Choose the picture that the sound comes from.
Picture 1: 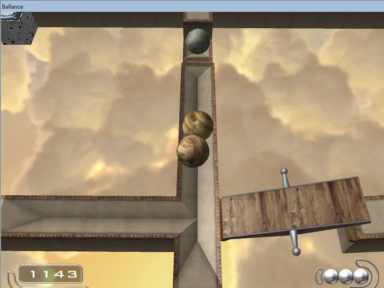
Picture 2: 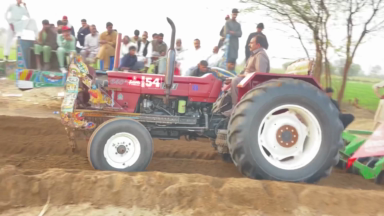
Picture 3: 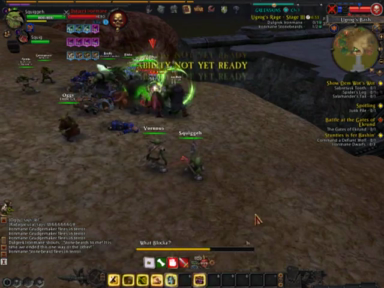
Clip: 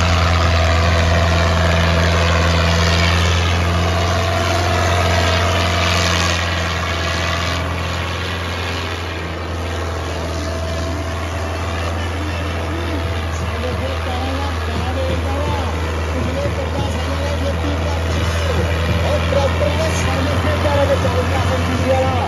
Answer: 2